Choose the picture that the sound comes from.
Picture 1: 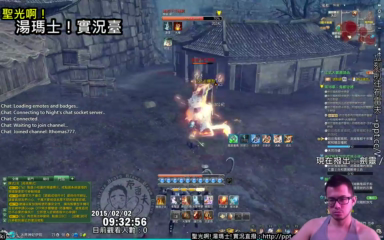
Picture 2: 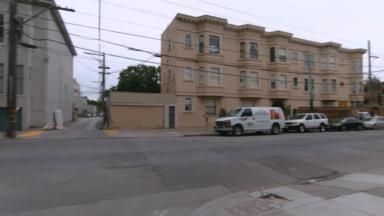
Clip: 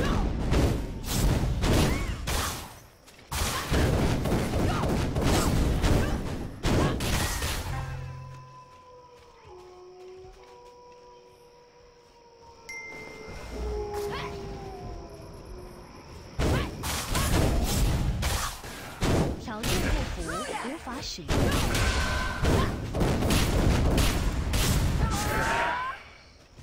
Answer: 1